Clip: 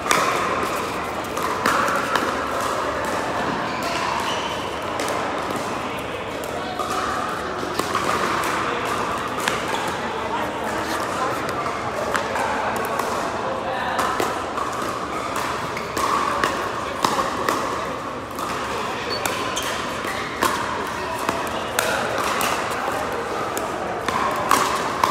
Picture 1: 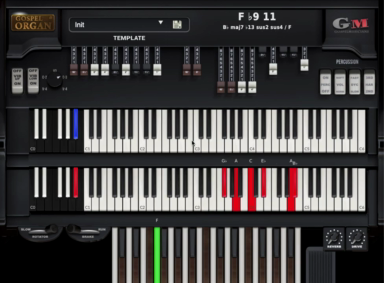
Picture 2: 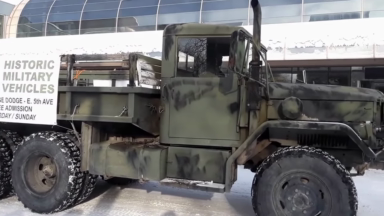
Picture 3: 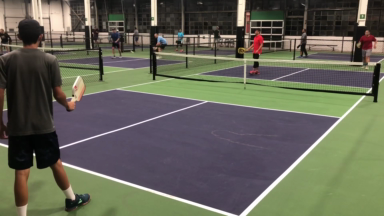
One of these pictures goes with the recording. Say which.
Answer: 3